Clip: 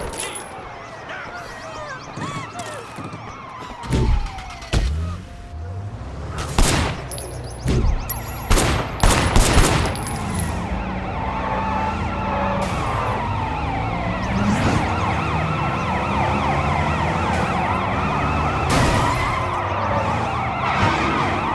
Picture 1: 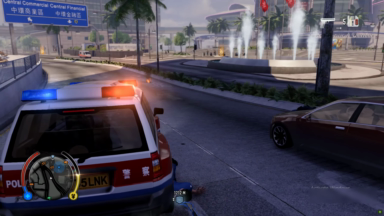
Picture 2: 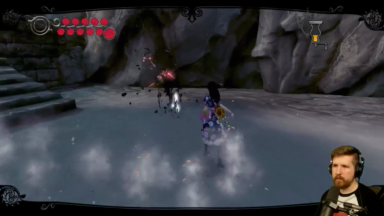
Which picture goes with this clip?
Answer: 1